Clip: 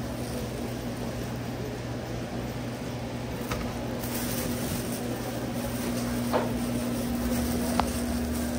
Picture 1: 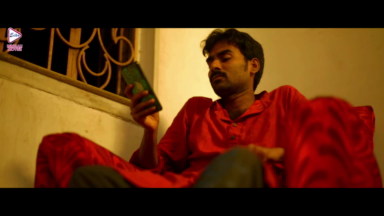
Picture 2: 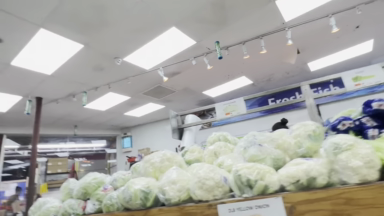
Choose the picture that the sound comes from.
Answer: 2